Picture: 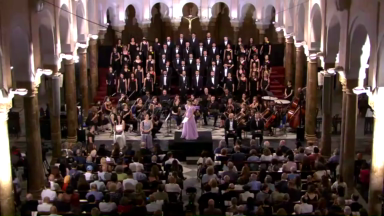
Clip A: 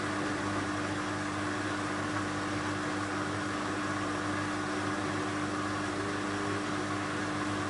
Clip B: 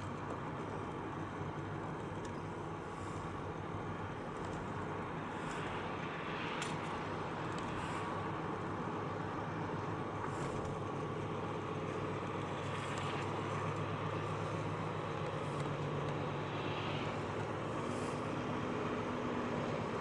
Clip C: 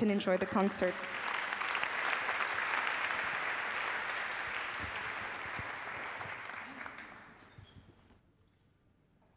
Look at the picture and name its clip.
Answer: C